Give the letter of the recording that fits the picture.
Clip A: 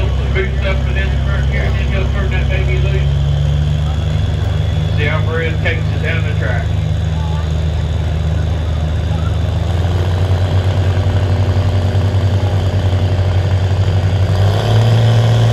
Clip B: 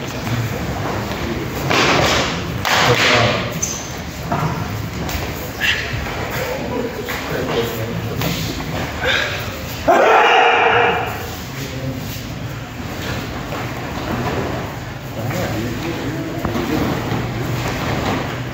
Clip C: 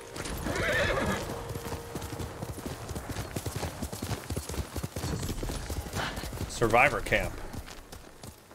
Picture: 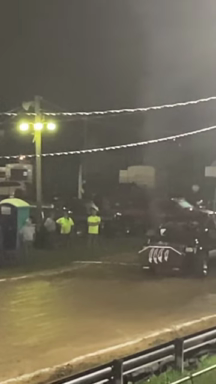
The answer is A